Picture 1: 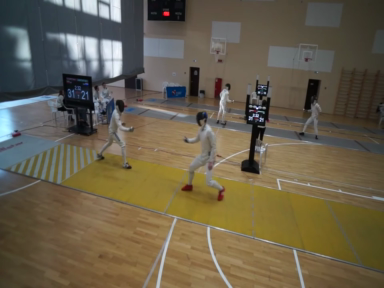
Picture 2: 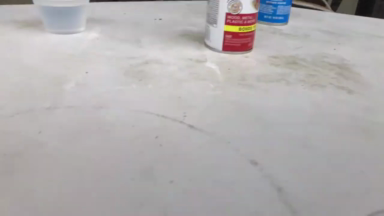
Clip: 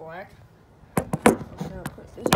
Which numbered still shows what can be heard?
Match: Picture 2